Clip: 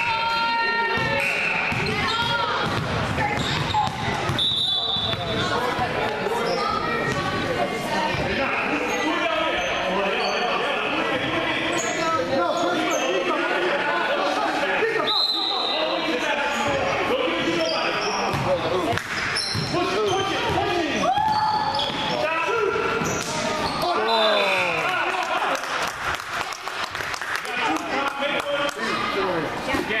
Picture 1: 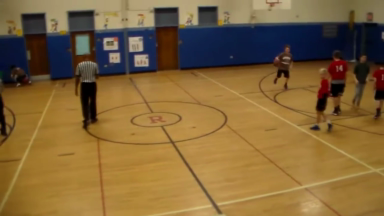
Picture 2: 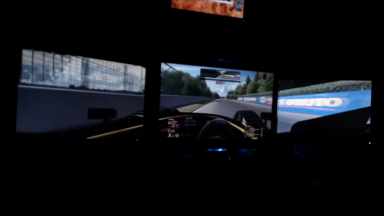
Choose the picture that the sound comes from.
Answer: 1